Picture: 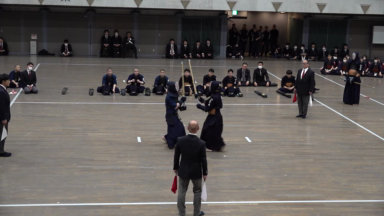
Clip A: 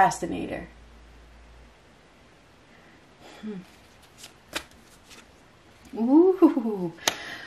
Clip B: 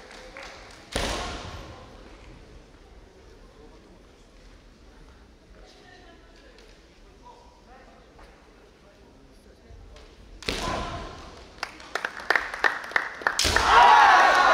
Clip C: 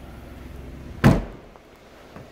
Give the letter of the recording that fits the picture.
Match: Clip B